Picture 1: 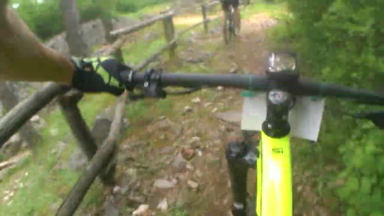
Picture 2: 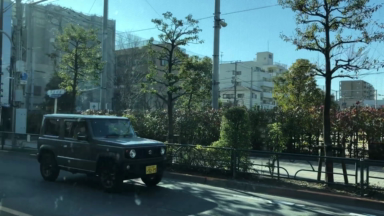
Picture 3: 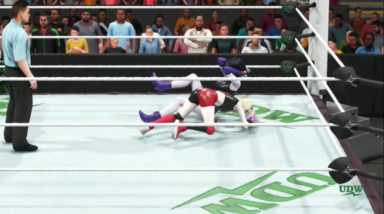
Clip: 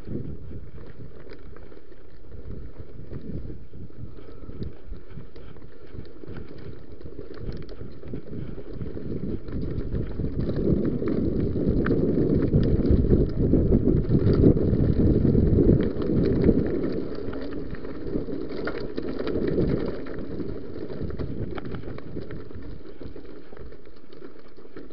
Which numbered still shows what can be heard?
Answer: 1